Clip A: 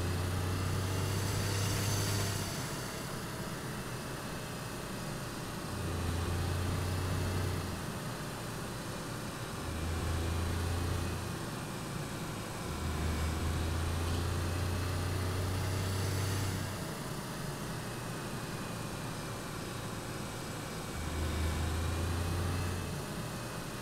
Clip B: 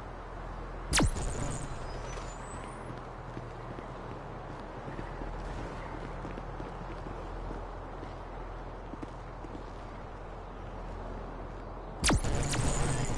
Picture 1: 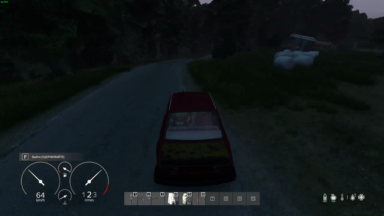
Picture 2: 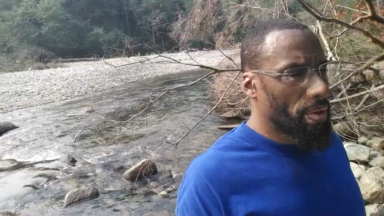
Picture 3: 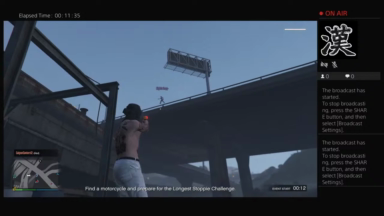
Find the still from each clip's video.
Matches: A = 1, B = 3